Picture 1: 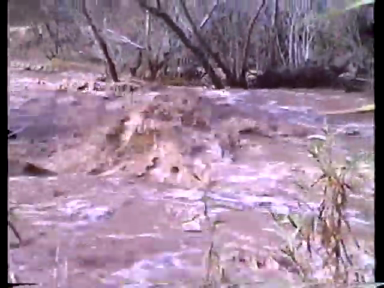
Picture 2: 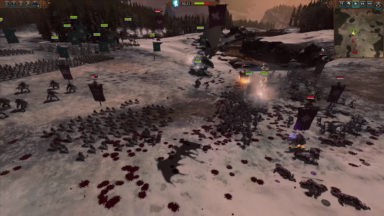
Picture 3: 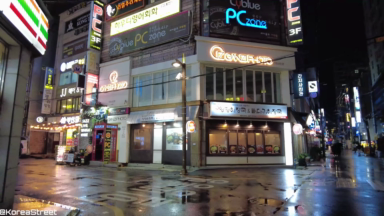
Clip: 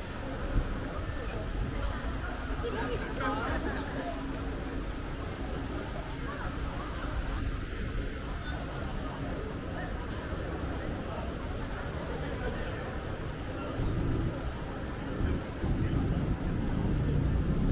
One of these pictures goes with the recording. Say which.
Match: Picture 3